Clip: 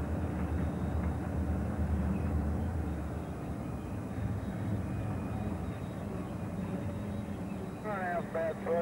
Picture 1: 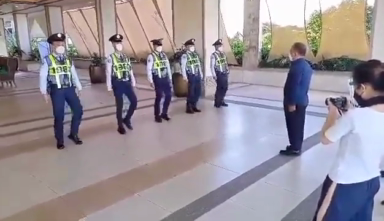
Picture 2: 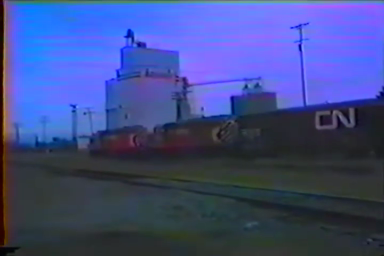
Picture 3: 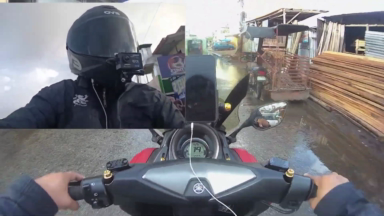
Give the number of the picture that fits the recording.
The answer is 2